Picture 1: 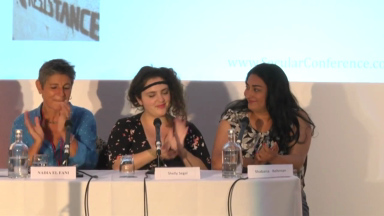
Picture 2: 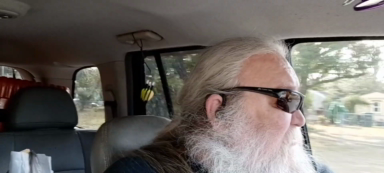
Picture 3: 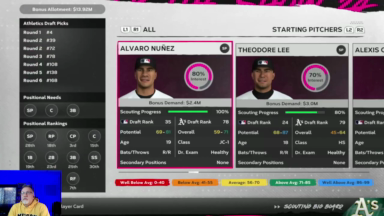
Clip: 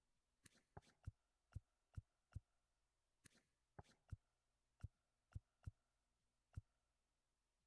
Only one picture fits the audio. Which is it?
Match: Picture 3